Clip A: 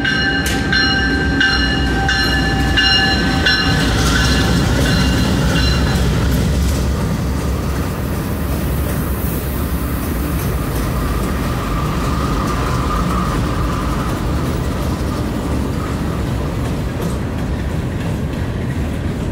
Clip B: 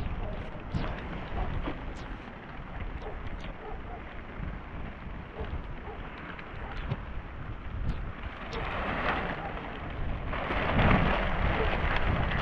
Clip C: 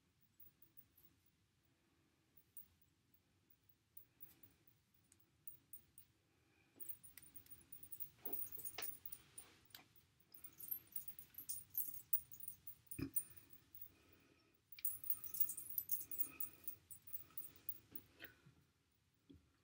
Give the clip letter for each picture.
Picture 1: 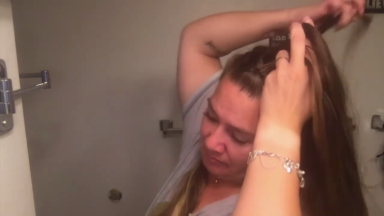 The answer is C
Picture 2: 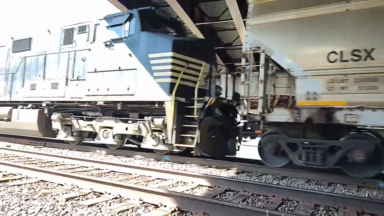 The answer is A